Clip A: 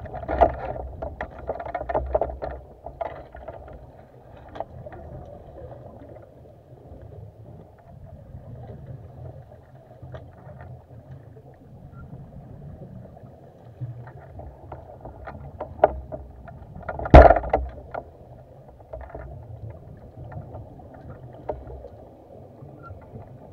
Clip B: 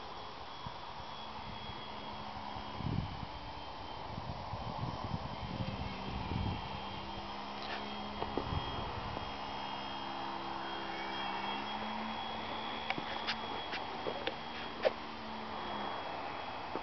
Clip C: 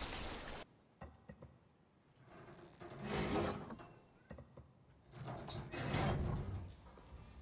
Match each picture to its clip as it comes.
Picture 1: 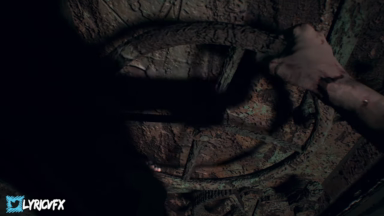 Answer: C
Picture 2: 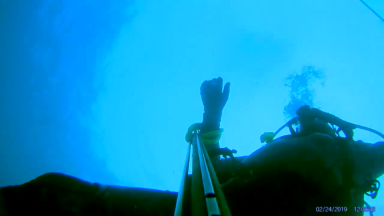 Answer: A